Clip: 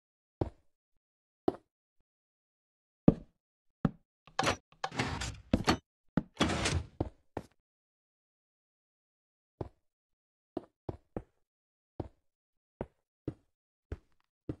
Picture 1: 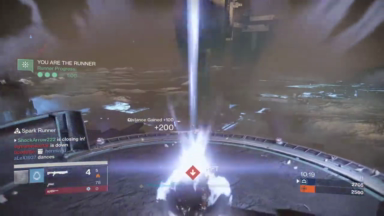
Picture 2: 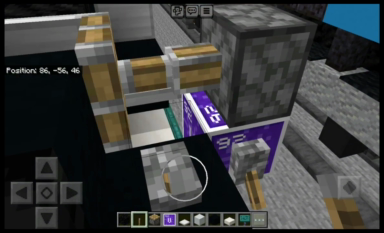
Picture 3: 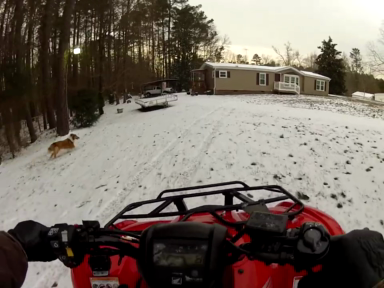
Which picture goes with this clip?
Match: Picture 2